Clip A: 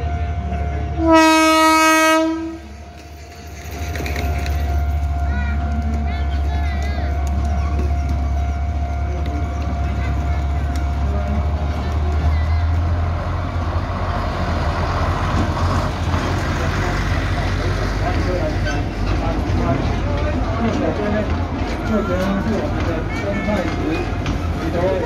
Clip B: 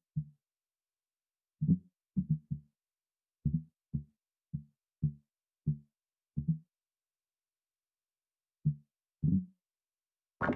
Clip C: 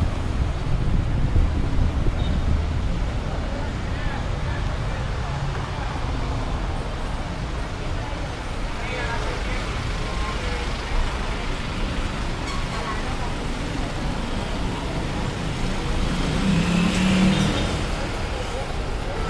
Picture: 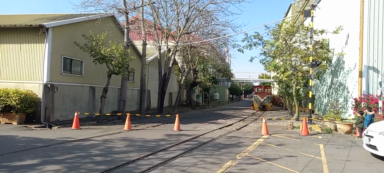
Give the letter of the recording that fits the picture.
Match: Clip A